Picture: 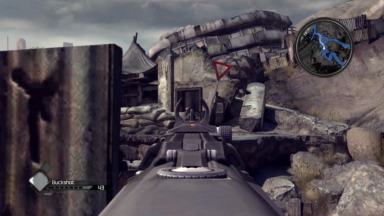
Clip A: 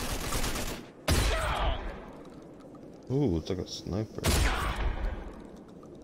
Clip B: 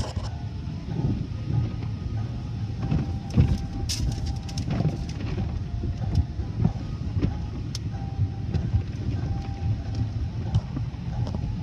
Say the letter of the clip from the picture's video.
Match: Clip A